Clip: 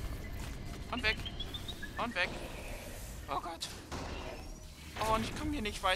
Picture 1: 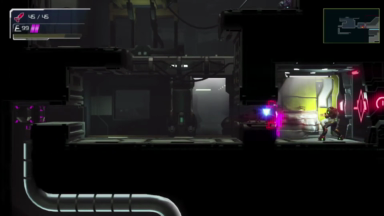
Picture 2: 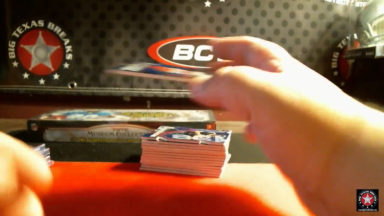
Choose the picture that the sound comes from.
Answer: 1